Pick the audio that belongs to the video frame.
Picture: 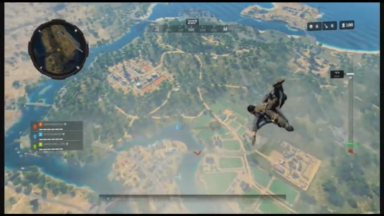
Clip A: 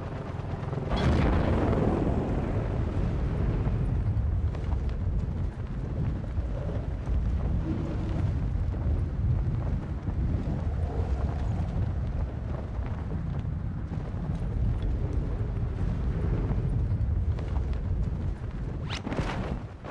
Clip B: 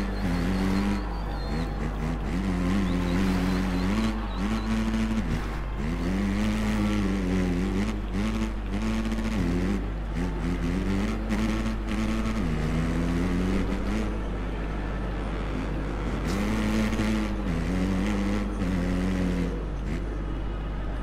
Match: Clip A